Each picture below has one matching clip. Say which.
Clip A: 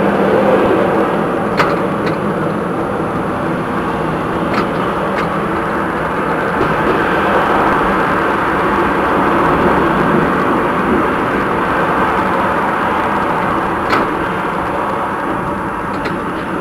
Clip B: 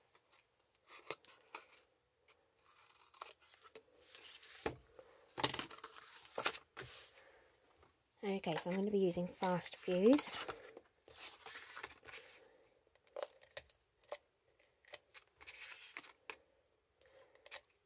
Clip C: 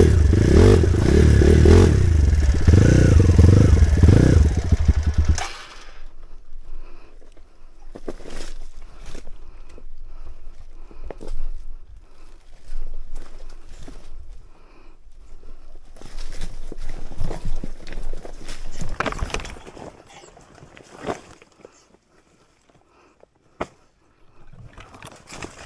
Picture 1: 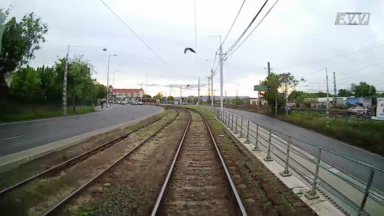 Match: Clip A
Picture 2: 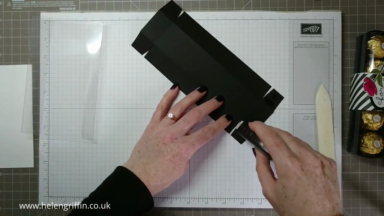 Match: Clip B